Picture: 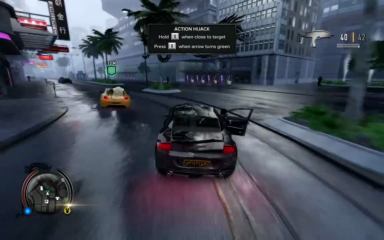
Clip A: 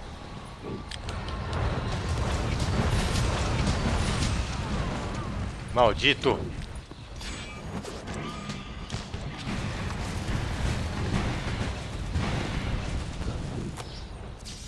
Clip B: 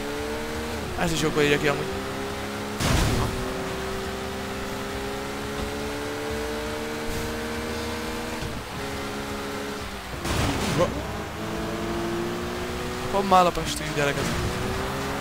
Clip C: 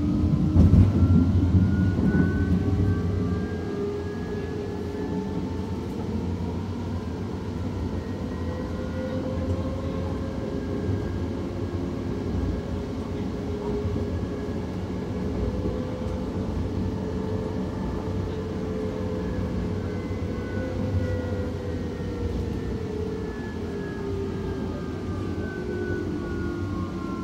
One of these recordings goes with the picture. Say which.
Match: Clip B